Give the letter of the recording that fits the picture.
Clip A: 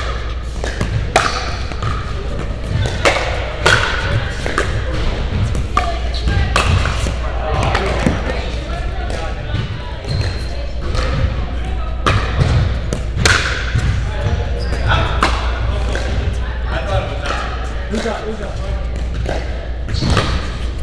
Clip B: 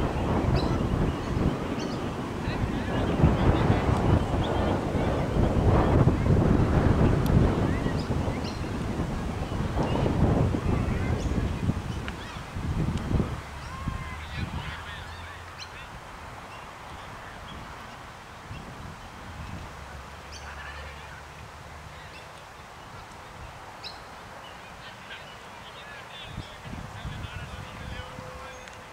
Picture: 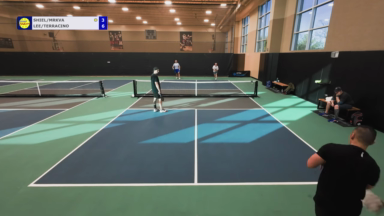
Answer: A